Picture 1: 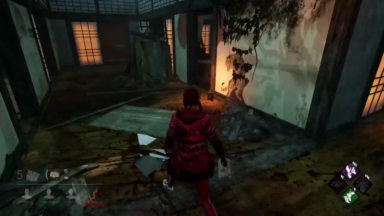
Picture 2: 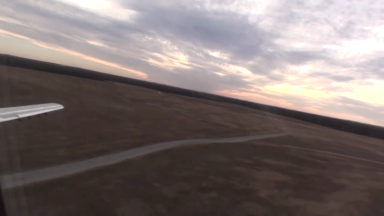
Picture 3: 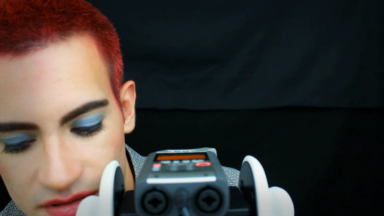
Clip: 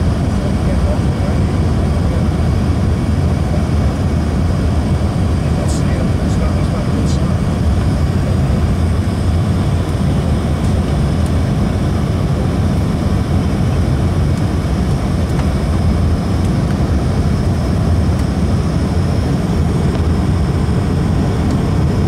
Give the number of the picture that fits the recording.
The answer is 2